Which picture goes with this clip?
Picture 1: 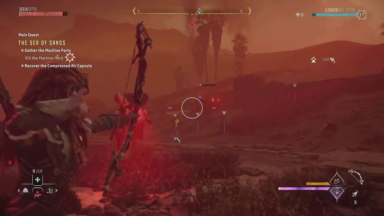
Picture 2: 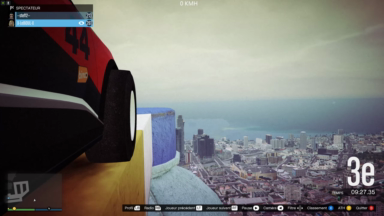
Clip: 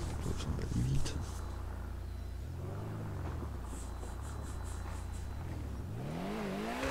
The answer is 2